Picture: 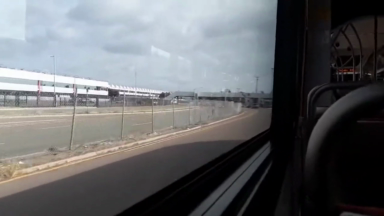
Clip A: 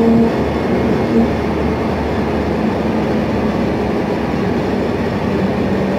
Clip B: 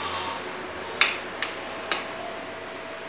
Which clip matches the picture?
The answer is A